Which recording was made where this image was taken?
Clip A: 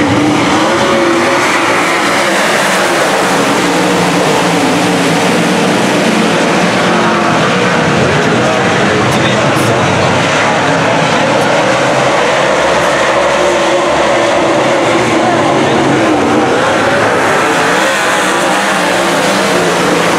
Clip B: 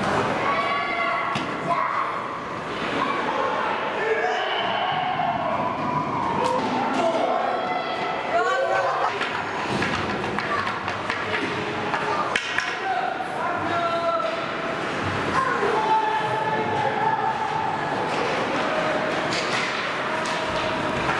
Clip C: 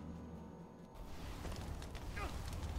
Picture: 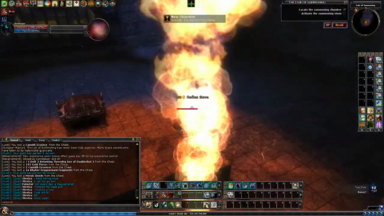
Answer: C